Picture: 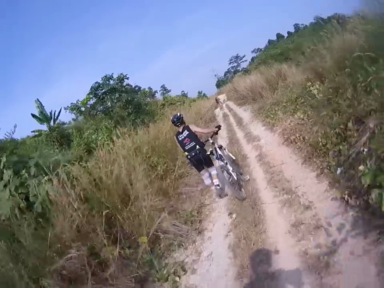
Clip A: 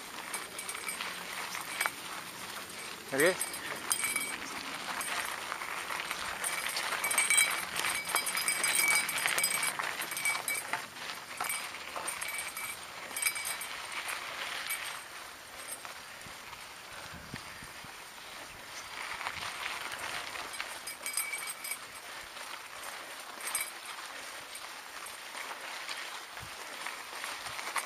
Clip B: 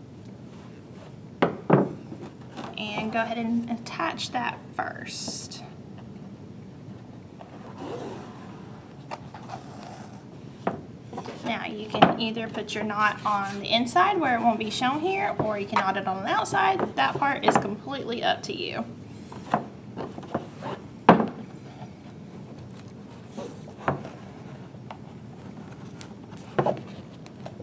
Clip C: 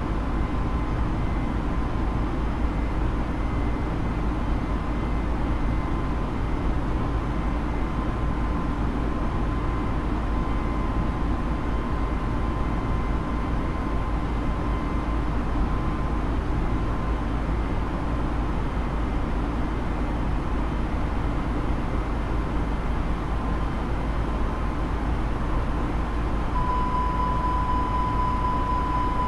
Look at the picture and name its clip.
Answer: A